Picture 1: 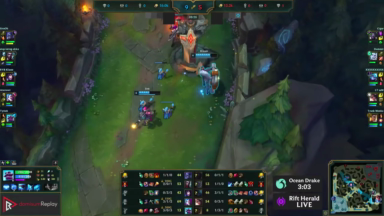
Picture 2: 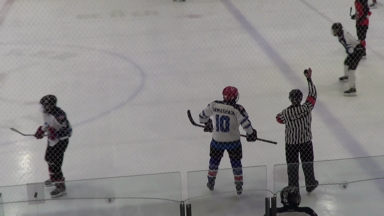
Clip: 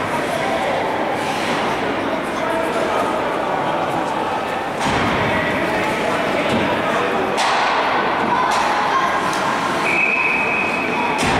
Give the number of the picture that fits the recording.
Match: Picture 2